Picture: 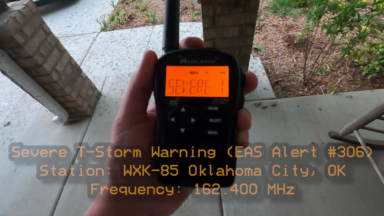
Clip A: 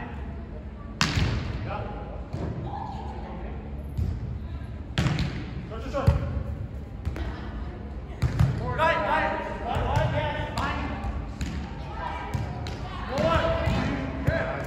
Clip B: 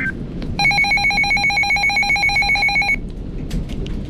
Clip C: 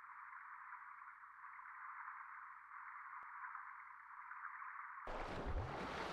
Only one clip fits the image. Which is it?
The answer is B